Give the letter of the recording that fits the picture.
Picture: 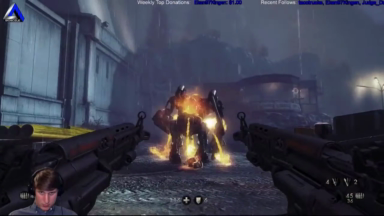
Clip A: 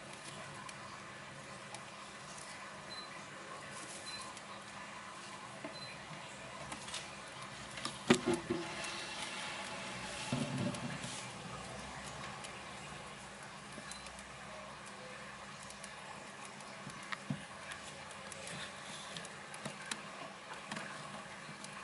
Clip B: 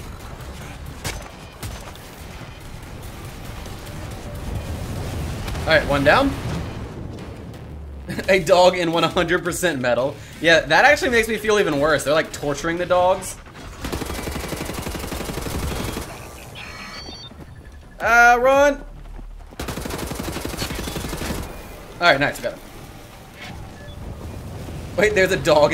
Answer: B